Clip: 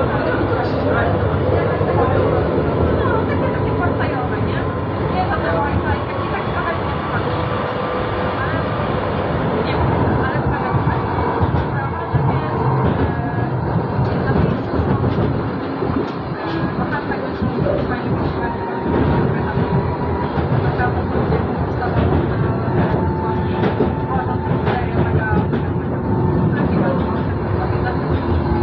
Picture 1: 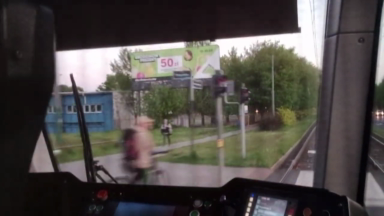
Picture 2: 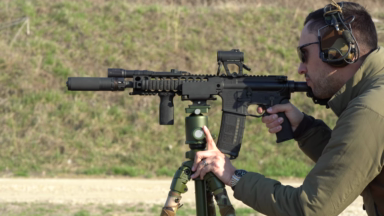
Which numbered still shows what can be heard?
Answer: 1